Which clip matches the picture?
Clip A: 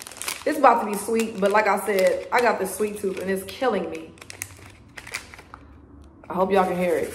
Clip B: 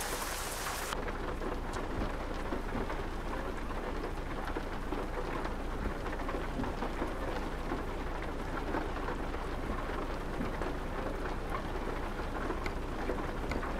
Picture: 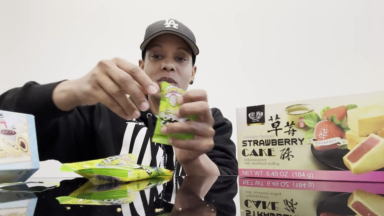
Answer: A